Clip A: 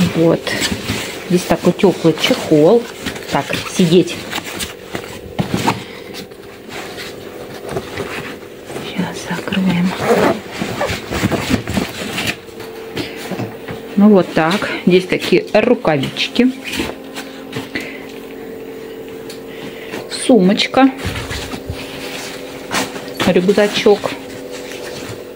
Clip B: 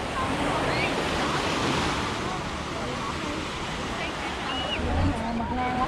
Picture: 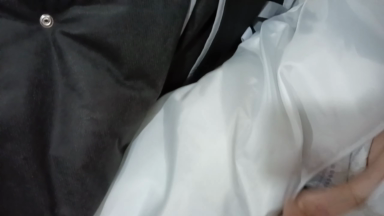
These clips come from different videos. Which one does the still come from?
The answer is A